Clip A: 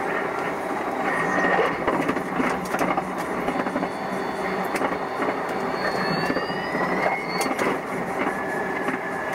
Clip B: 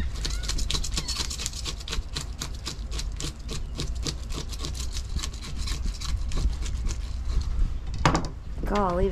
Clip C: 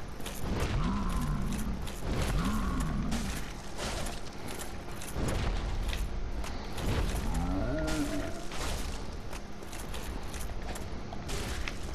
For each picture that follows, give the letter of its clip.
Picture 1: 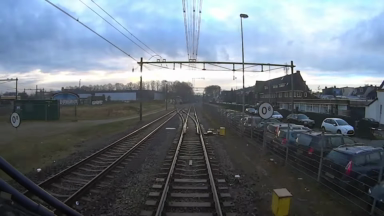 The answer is A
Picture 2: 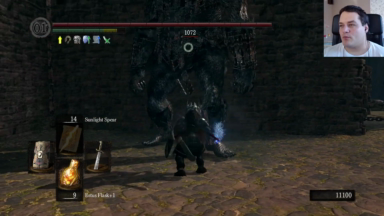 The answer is C